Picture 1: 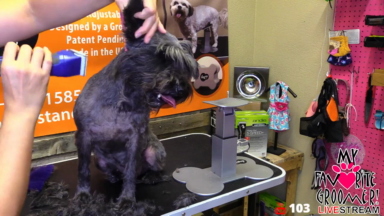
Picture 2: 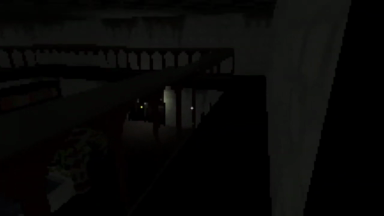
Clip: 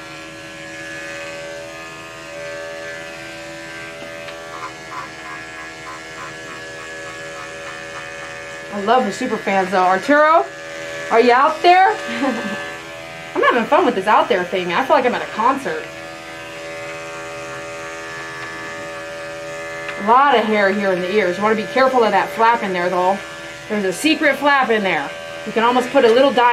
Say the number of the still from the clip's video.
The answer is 1